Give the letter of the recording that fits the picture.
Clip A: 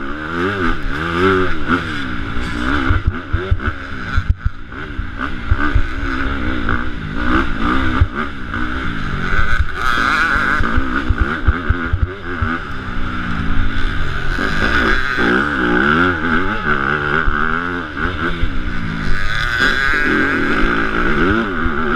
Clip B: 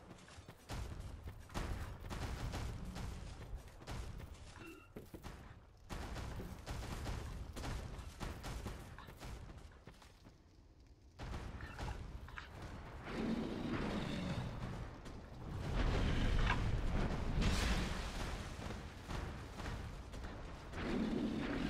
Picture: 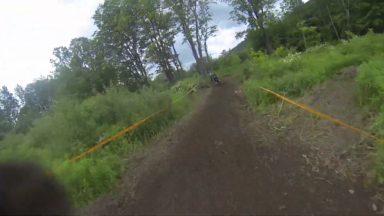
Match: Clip A